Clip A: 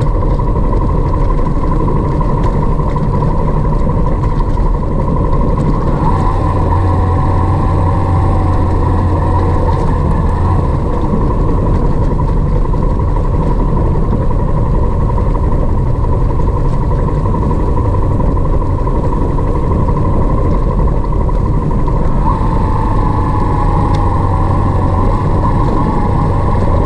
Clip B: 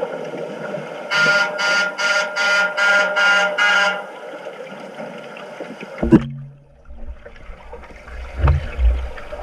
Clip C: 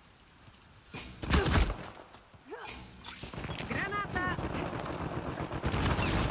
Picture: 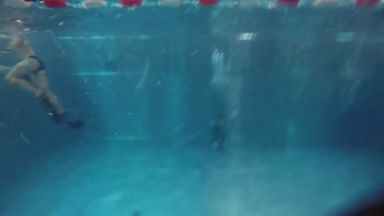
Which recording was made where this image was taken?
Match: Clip B